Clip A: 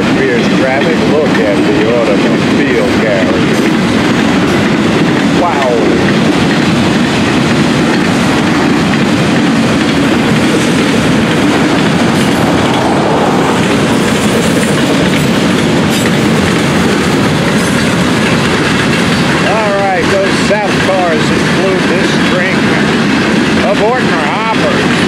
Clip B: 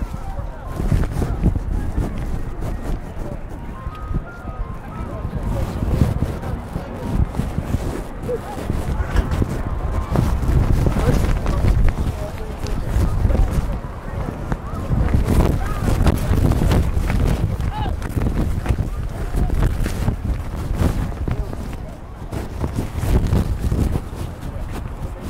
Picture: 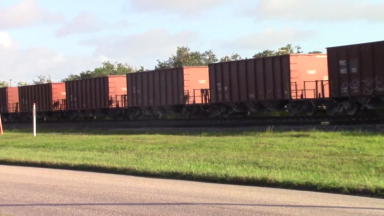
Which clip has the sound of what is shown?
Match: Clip A